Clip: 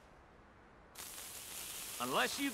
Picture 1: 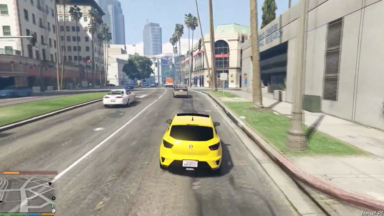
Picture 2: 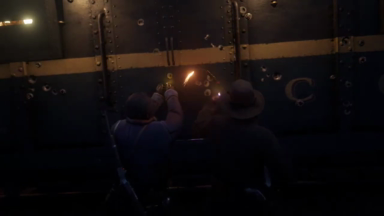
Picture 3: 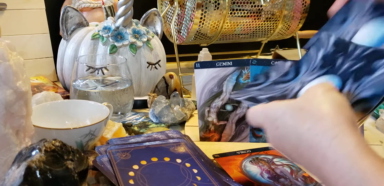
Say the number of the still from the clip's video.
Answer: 2